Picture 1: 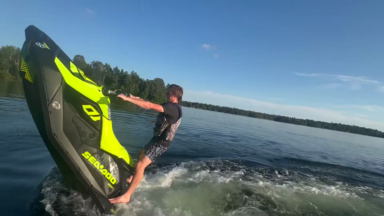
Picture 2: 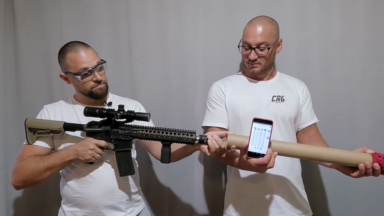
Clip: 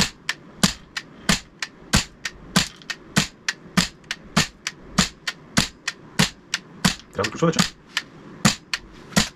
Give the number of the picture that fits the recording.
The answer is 2